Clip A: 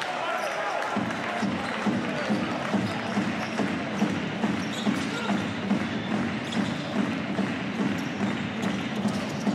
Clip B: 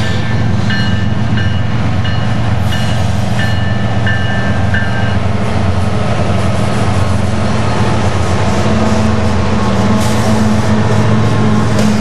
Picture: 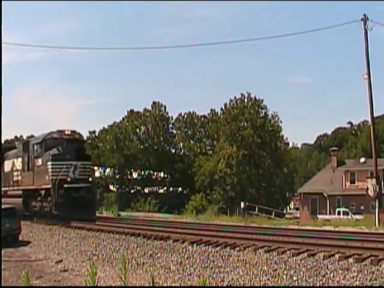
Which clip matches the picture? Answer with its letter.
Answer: B